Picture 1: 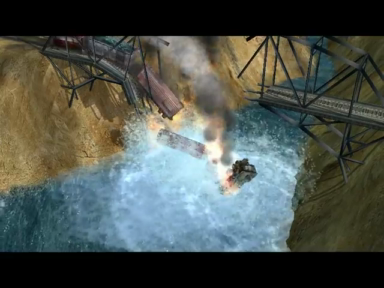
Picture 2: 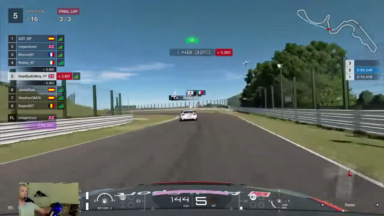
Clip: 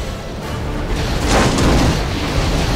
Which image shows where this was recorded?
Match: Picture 1